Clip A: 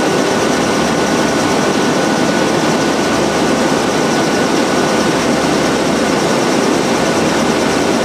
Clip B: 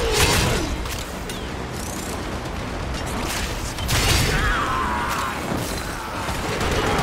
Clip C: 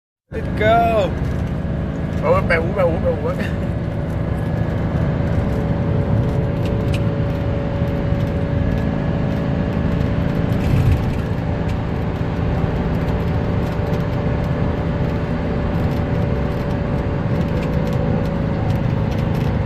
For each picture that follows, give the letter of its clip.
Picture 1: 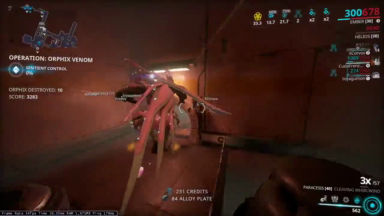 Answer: B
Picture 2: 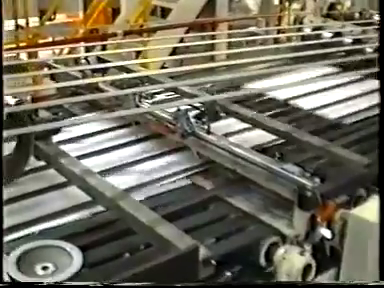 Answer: A